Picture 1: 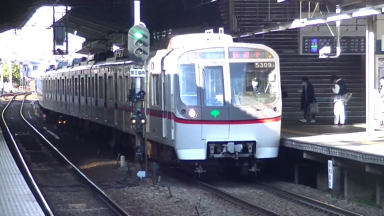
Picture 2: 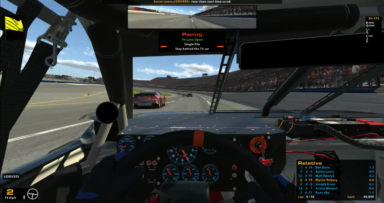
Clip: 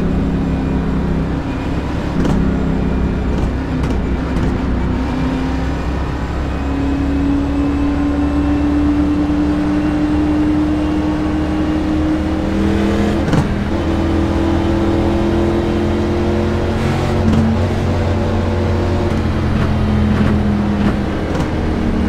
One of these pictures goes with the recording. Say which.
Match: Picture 2